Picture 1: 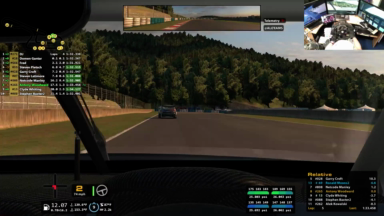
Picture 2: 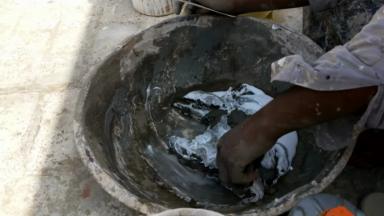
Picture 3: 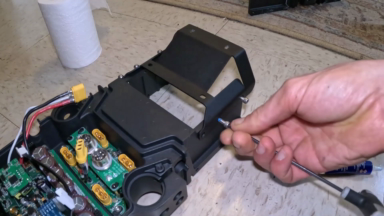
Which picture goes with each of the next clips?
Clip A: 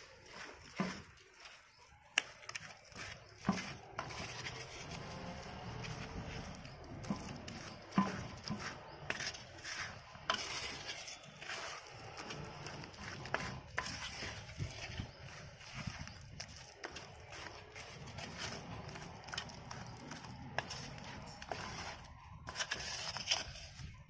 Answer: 2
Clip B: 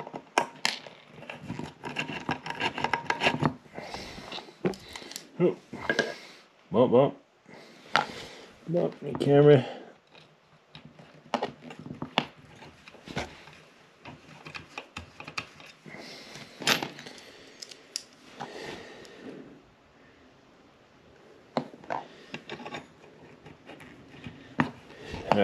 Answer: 3